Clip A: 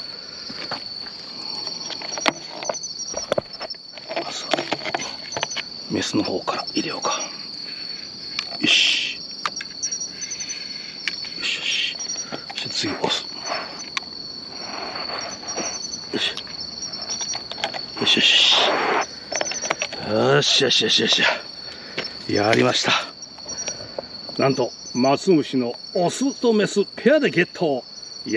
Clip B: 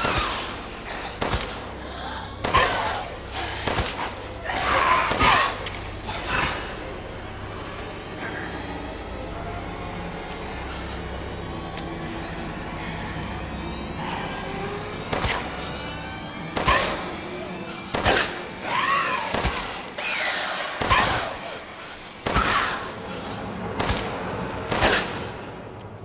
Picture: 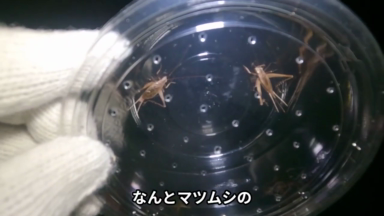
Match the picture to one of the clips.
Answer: A